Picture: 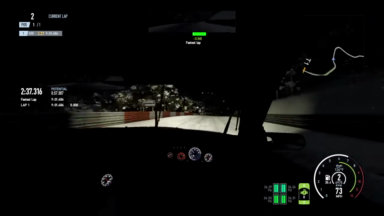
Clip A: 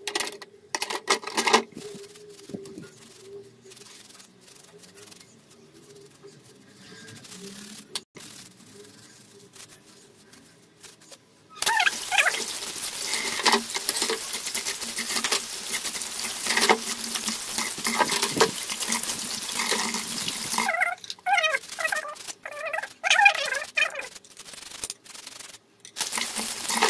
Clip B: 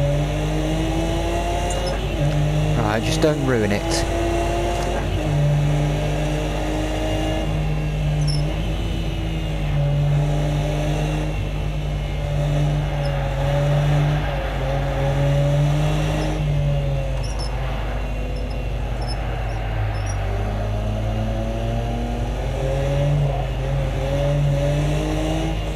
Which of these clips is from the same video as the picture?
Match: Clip B